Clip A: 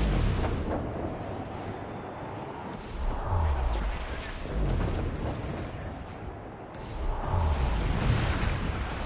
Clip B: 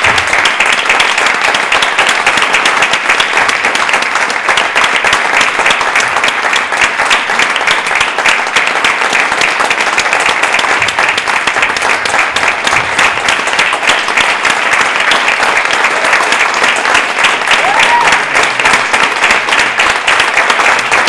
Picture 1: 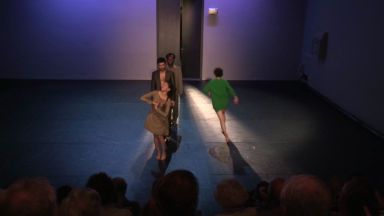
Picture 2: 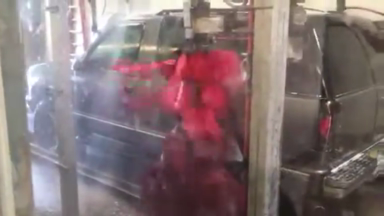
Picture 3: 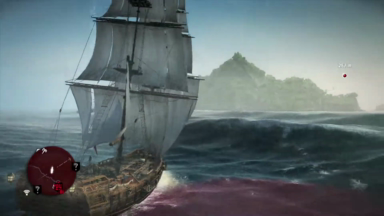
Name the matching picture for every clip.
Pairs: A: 3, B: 1